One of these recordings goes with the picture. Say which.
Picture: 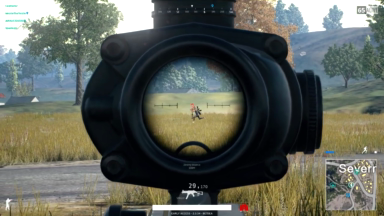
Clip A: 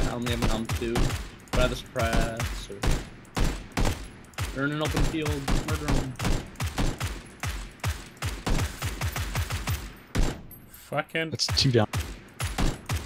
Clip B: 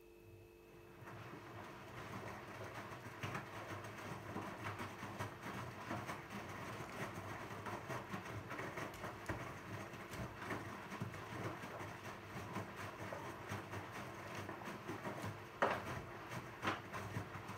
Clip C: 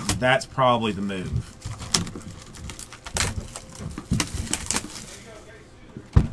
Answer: A